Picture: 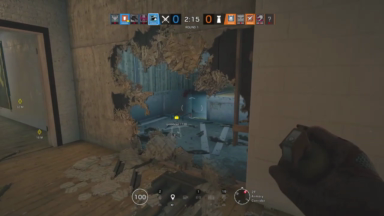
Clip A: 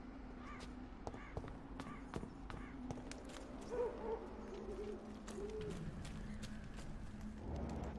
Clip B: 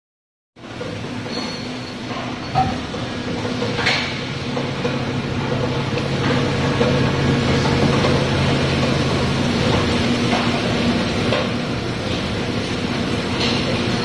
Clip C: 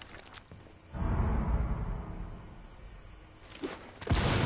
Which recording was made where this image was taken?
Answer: C